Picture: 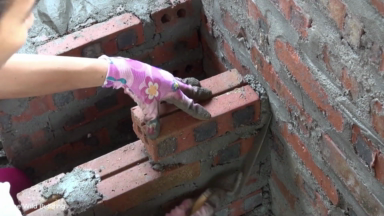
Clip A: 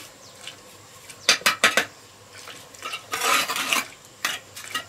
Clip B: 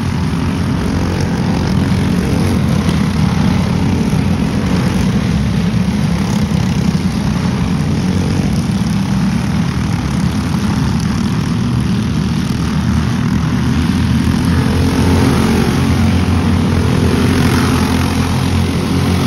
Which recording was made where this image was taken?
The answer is A